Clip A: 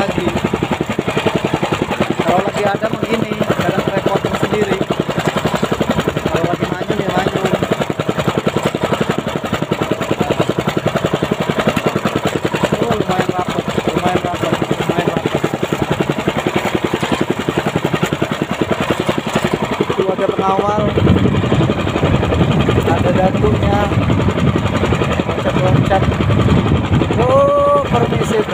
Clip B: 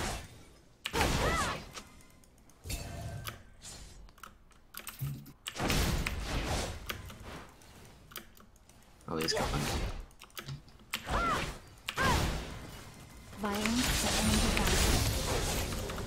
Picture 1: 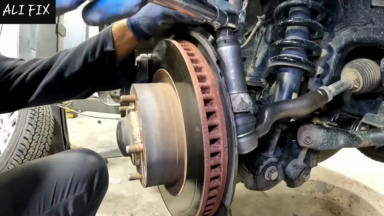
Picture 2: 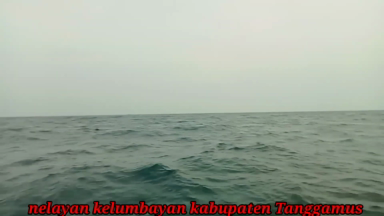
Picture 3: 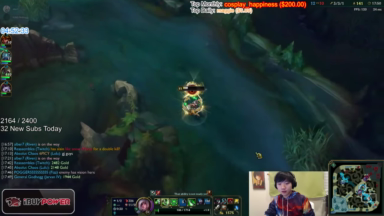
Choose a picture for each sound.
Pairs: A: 2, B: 3